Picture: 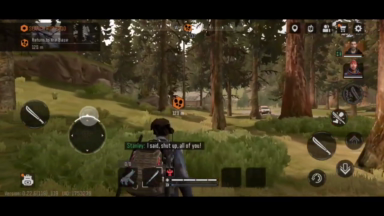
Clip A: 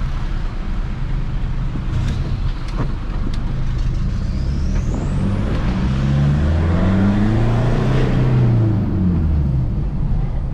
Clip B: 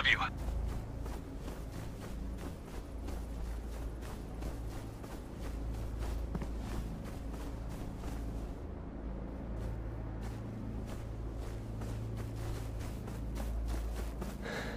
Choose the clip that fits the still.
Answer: B